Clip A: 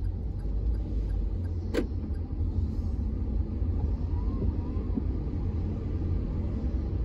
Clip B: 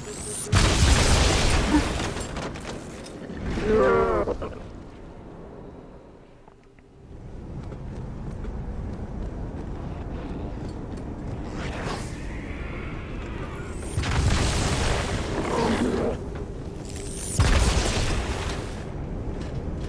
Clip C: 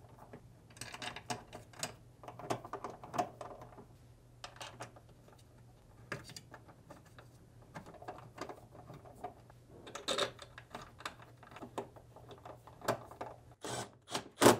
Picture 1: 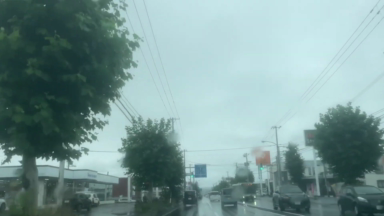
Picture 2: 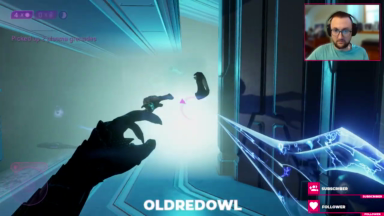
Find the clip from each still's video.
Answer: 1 A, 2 B